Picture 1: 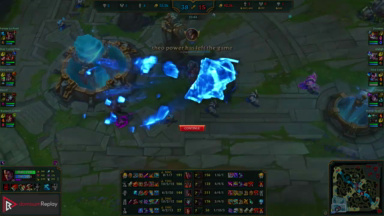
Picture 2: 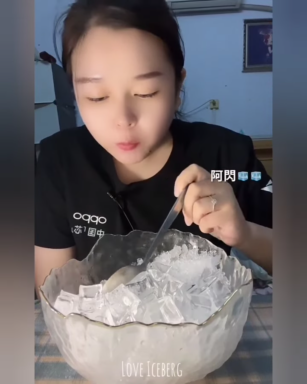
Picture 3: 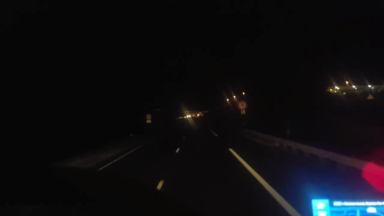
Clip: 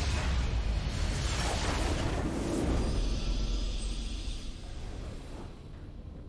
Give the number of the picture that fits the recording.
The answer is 1